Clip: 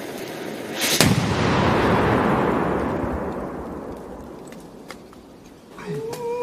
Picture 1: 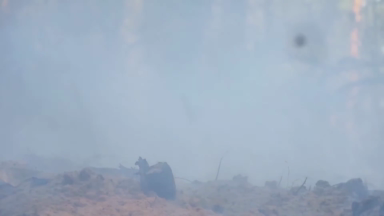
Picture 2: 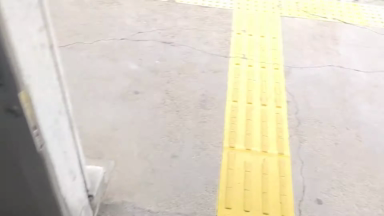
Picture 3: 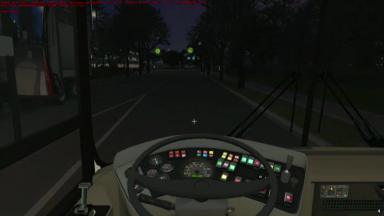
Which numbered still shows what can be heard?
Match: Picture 1